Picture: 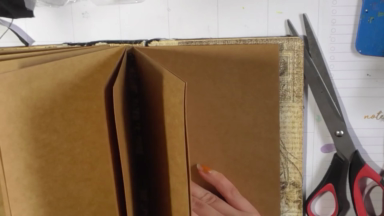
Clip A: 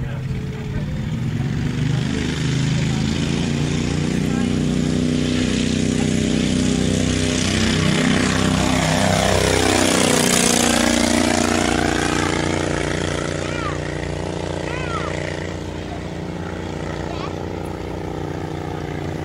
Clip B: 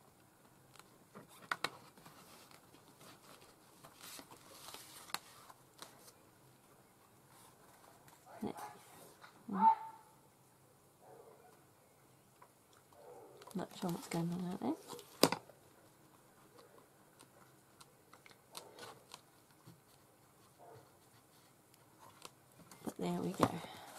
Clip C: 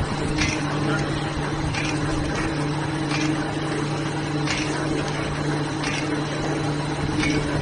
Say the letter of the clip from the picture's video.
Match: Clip B